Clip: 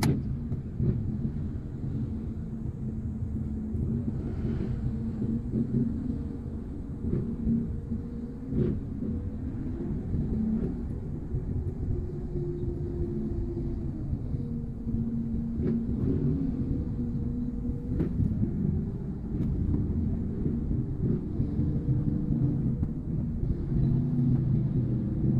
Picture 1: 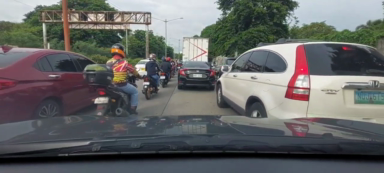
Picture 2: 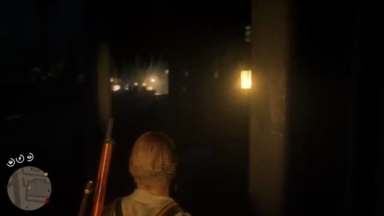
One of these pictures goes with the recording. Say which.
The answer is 1